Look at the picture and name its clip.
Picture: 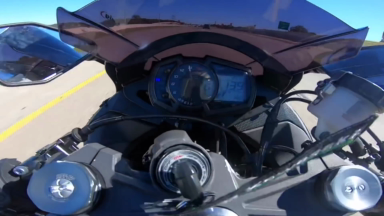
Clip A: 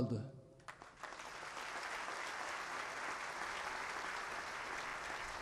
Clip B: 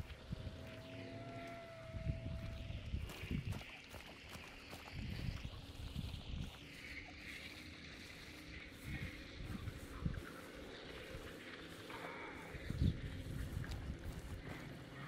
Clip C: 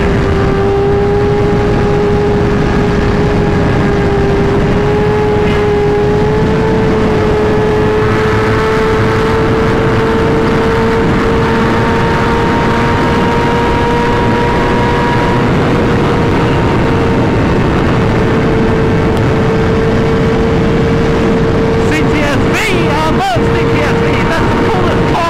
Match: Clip C